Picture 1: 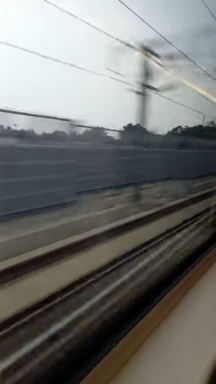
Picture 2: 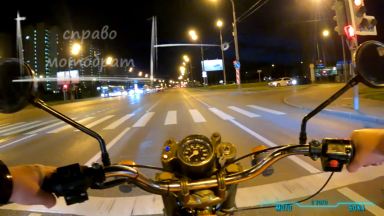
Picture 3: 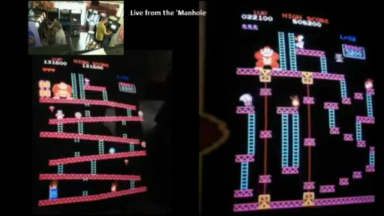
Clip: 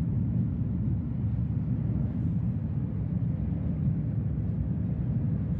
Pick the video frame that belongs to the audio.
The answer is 1